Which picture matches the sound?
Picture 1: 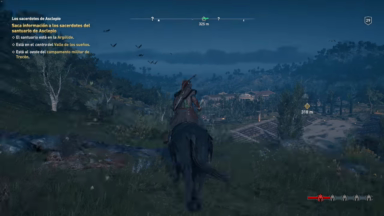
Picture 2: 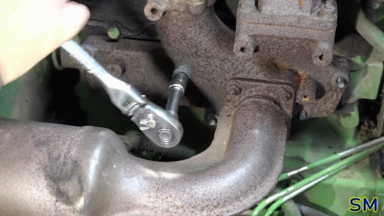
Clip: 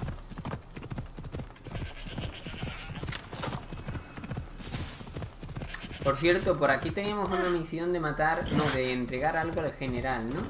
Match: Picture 1